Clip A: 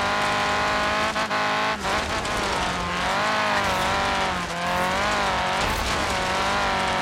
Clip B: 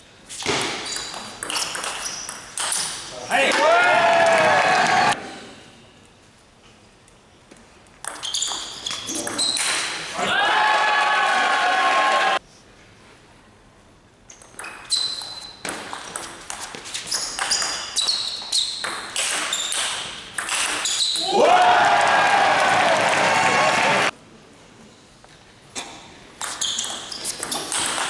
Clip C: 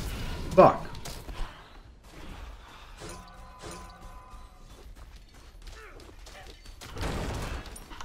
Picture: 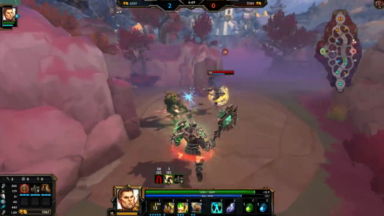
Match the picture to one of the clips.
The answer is C